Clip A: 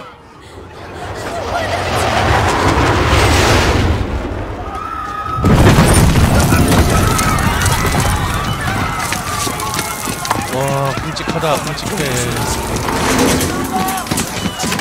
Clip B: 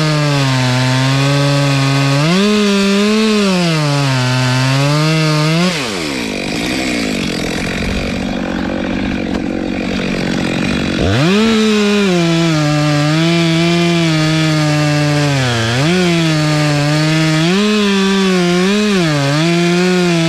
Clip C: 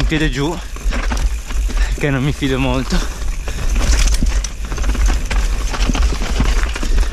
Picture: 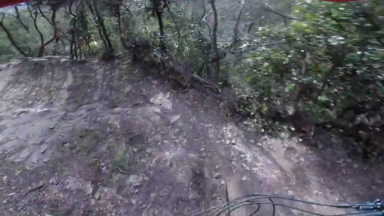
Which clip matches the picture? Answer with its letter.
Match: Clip C